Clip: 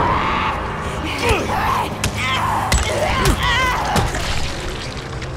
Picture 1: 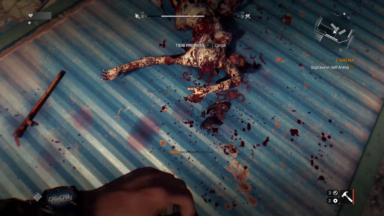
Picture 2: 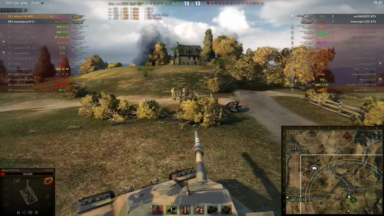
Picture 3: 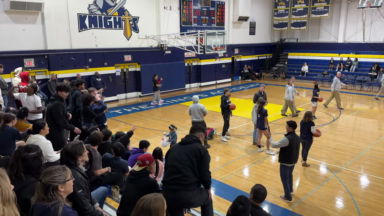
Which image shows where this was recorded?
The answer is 1